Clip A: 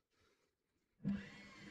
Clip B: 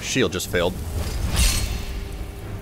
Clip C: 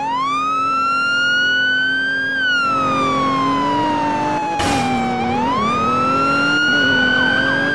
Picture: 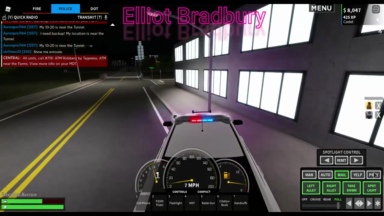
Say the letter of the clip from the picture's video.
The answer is C